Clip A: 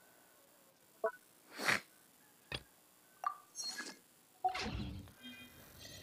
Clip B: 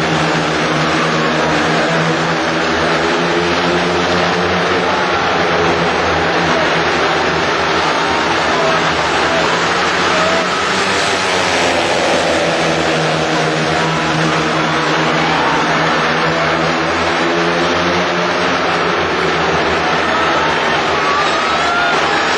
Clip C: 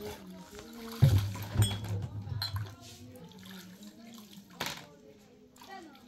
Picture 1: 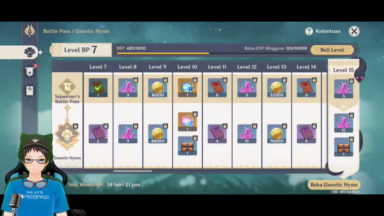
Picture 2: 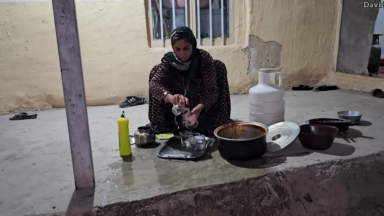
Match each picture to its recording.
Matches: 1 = A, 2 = C